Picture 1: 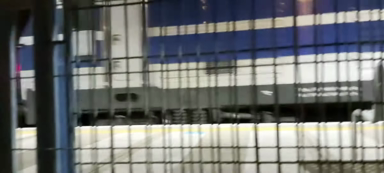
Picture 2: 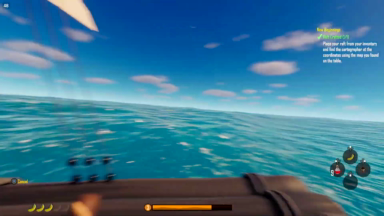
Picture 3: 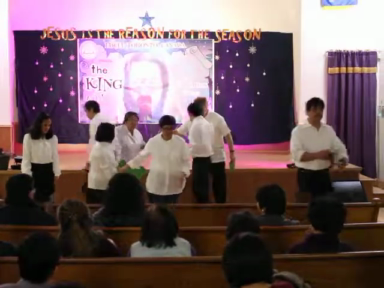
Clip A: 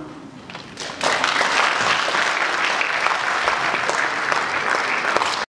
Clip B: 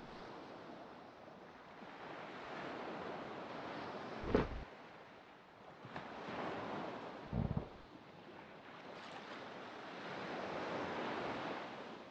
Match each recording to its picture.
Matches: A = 3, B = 2